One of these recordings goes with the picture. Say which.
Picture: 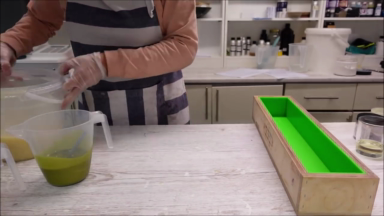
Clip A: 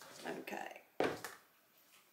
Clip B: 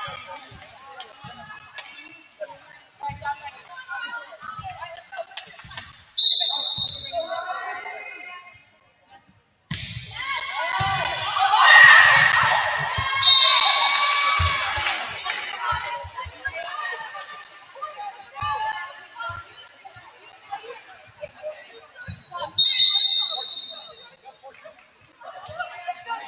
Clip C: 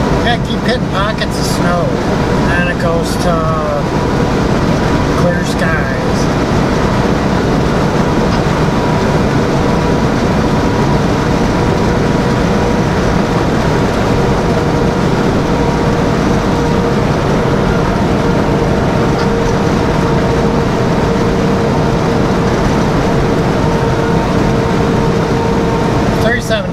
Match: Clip A